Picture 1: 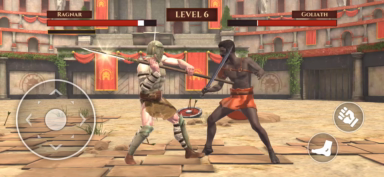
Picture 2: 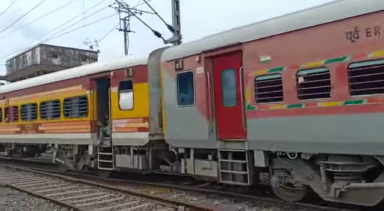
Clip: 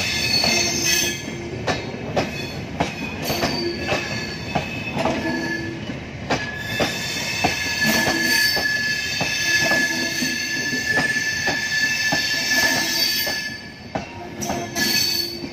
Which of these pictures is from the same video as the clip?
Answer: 2